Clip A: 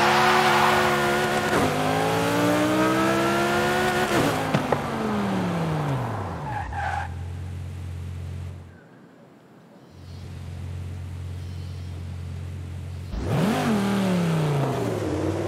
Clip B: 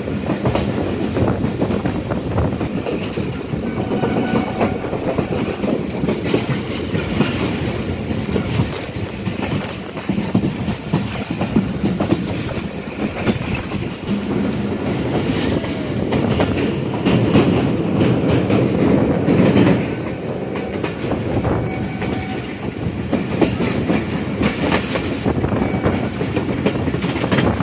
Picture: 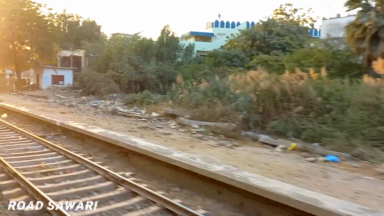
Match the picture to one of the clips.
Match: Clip B